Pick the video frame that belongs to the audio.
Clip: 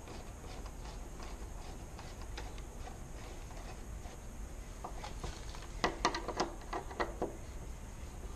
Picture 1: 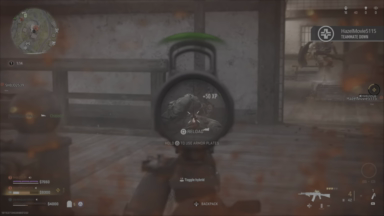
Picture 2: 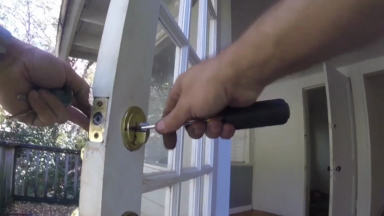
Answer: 2